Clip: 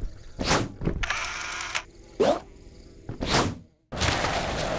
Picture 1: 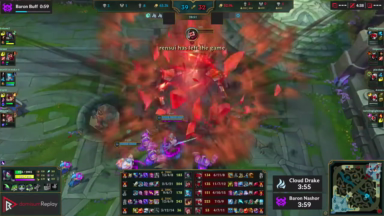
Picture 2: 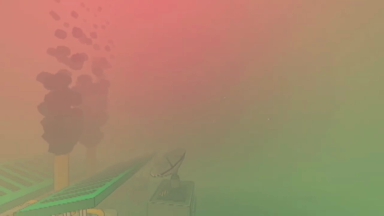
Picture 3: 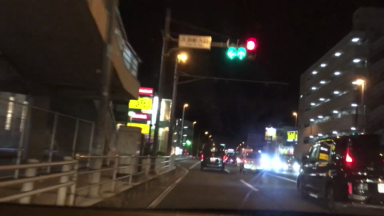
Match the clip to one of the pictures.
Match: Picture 2